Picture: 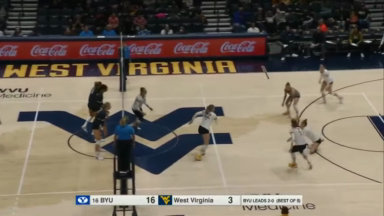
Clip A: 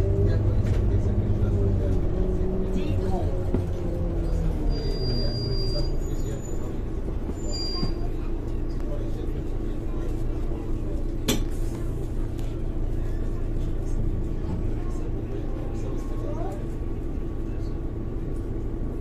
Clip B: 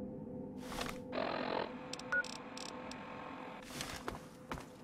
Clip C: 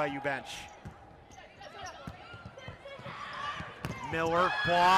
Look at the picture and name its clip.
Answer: C